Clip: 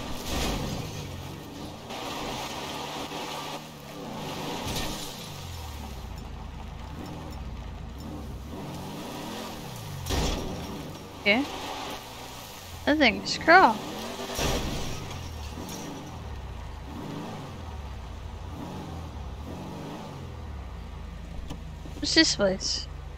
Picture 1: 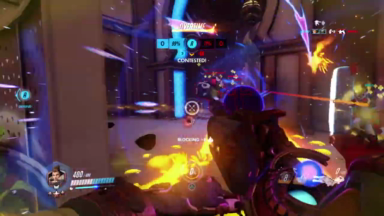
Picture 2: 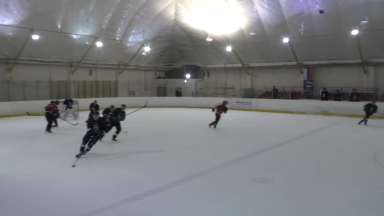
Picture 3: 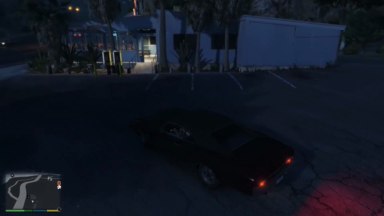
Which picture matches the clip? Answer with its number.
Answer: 3